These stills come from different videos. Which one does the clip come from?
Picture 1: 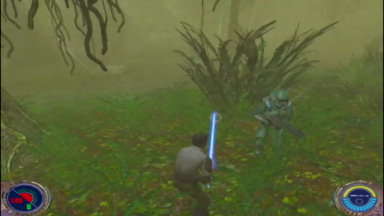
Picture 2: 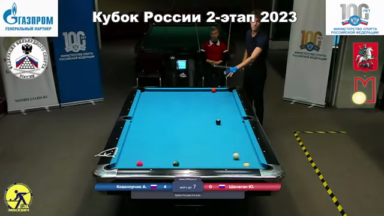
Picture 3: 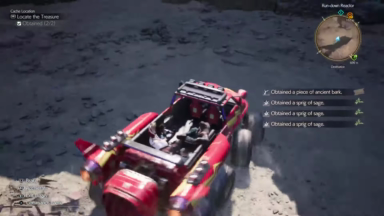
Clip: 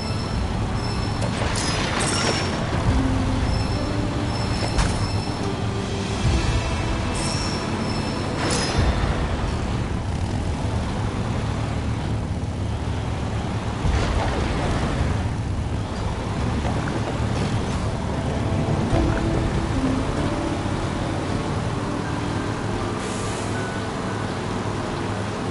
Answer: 3